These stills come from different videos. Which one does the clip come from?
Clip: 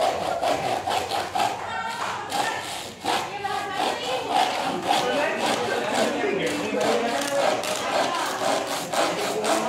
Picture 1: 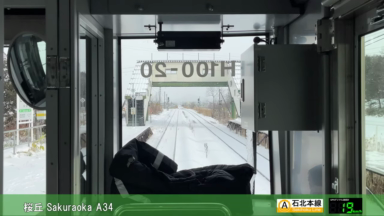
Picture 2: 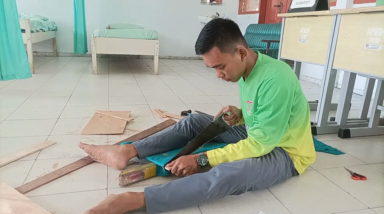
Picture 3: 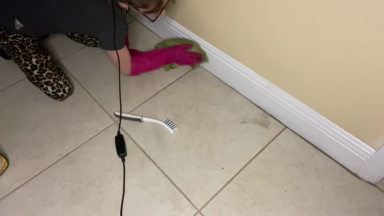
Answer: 2